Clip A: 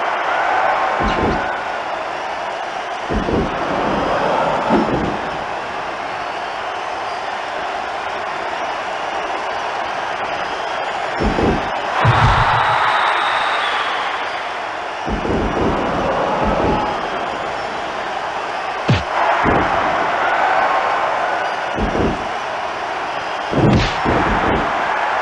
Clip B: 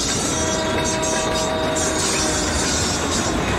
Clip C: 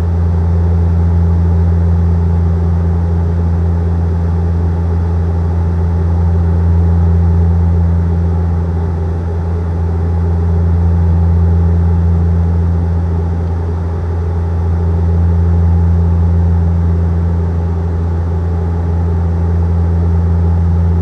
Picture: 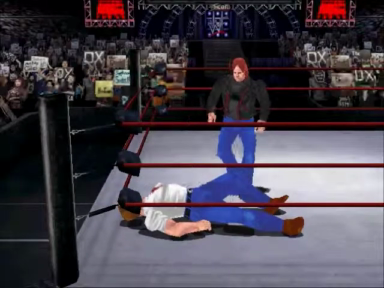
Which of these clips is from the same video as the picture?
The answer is A